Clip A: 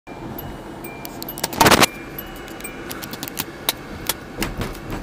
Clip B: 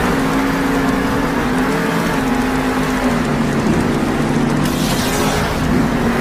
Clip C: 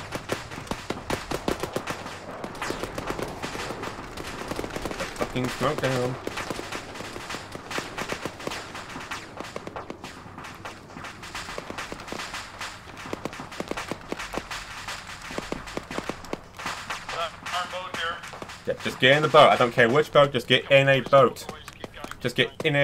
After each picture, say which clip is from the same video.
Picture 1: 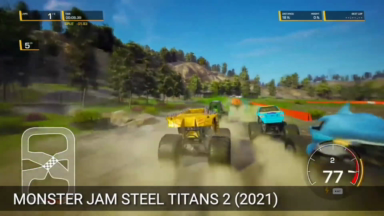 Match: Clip B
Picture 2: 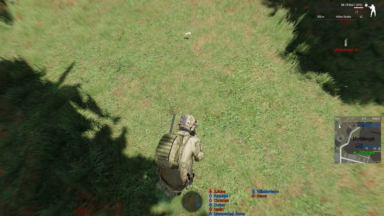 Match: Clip C